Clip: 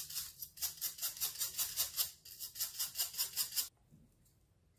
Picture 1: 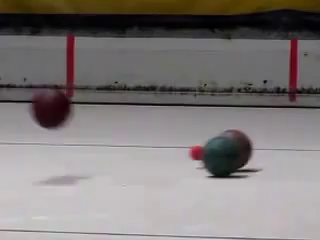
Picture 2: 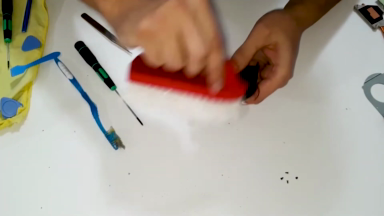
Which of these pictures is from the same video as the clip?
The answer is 2